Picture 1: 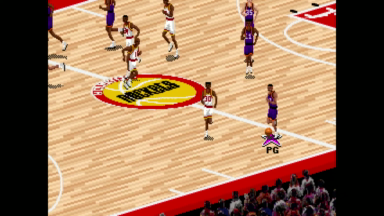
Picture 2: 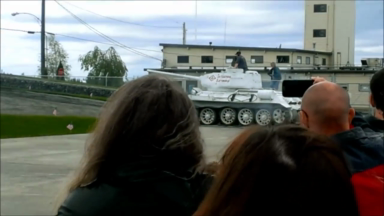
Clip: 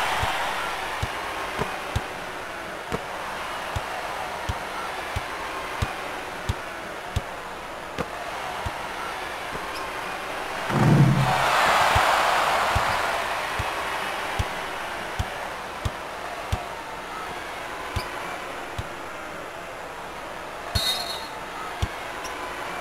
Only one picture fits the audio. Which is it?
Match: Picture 1